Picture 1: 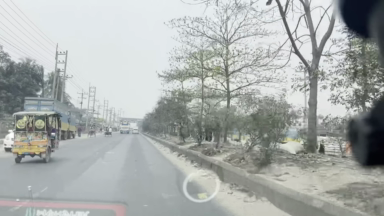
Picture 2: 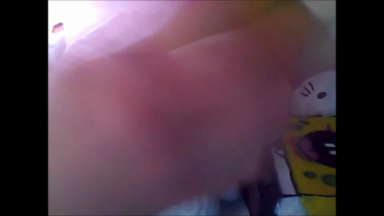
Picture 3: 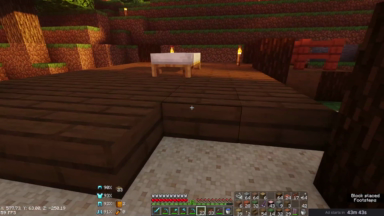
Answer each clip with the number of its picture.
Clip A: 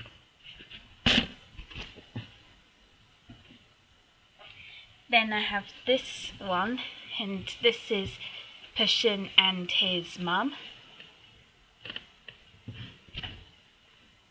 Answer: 2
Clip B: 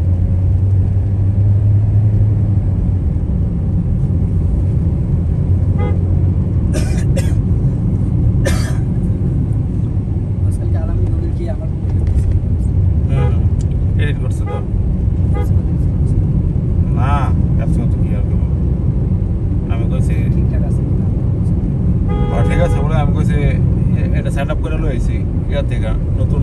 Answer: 1